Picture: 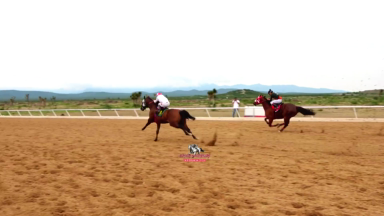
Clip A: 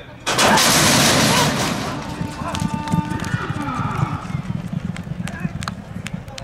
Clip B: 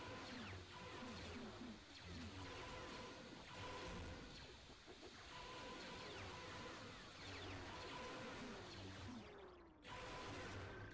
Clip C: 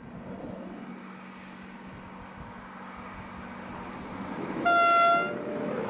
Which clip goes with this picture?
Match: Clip A